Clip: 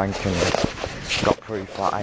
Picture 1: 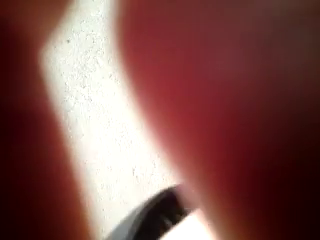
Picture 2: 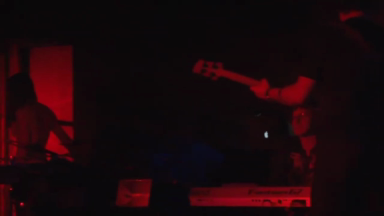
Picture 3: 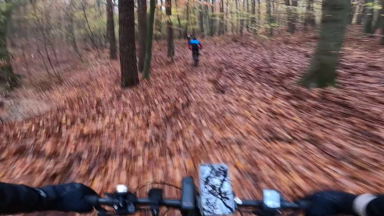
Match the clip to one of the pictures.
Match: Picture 1